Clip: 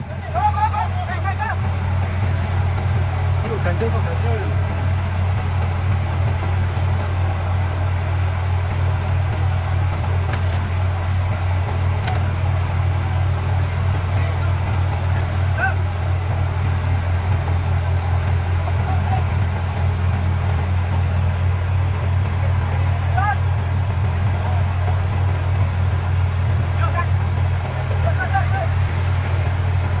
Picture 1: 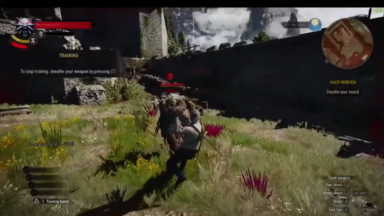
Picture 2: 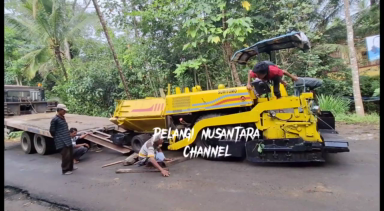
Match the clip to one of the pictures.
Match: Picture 2